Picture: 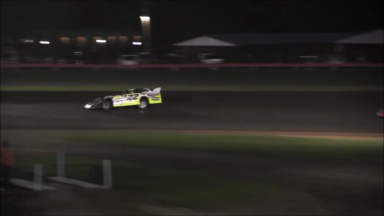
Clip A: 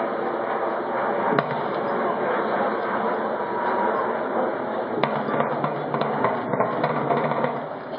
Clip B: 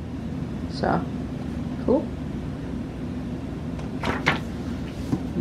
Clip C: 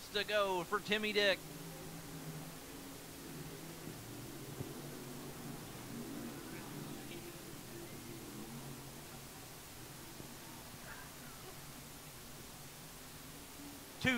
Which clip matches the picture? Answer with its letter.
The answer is C